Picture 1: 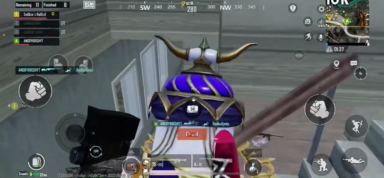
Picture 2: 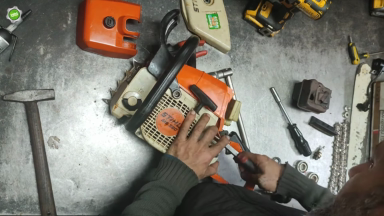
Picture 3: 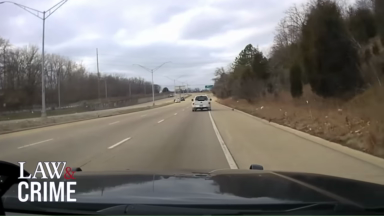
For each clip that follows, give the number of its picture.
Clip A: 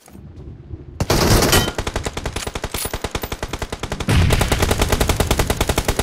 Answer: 1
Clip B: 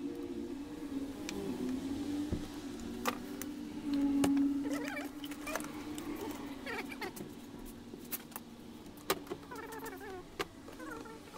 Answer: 2